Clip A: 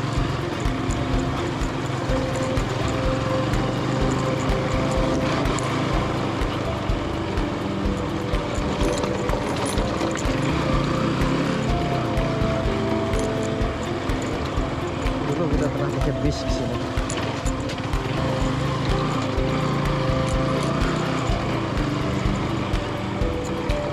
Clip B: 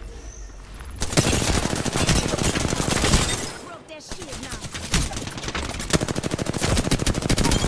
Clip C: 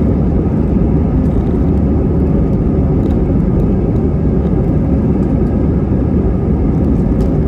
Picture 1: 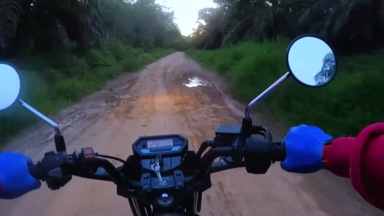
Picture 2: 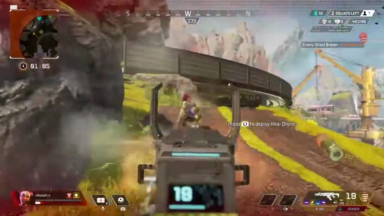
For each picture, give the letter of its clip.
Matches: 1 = A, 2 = B